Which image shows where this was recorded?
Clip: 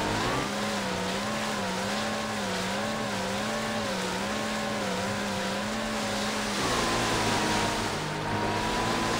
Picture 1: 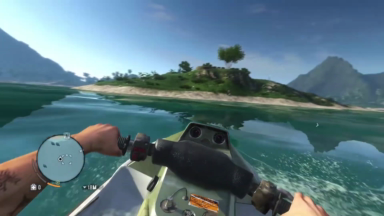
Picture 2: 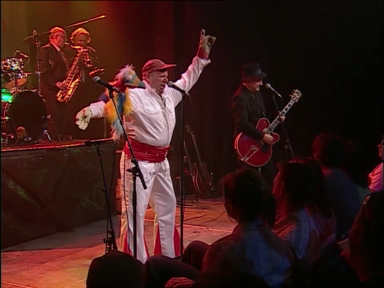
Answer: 1